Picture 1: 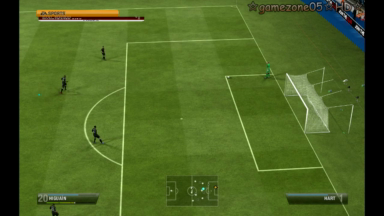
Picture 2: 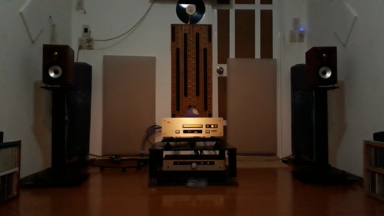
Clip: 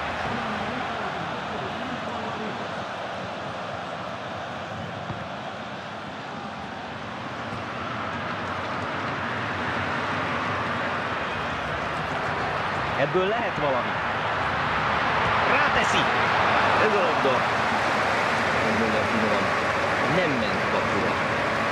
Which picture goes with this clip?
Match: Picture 1